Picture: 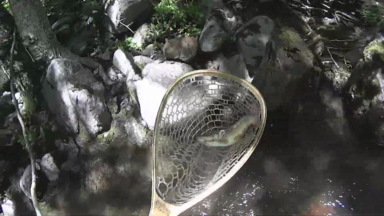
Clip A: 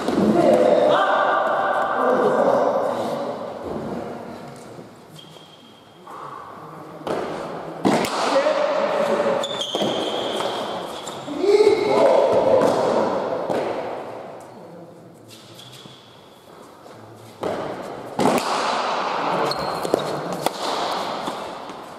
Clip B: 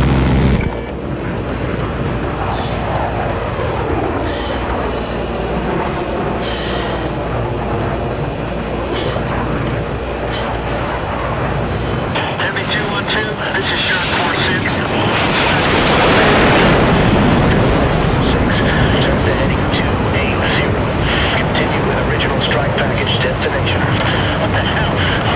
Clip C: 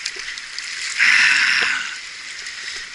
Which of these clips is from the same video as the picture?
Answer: C